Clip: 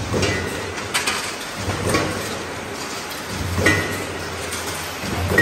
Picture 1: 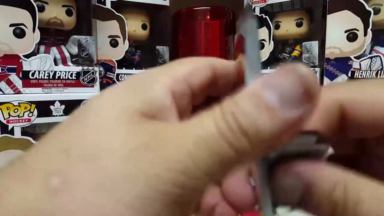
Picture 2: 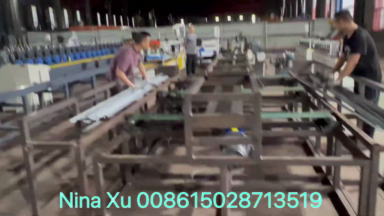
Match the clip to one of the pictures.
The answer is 2